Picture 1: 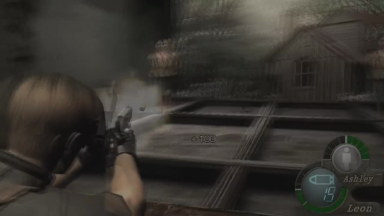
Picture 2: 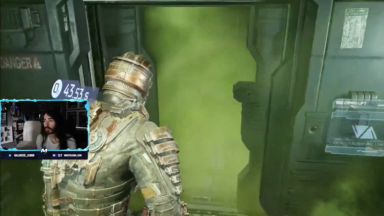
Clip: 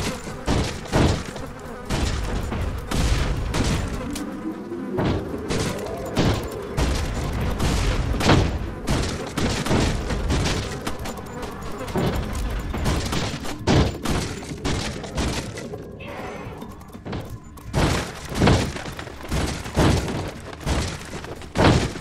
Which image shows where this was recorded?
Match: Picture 1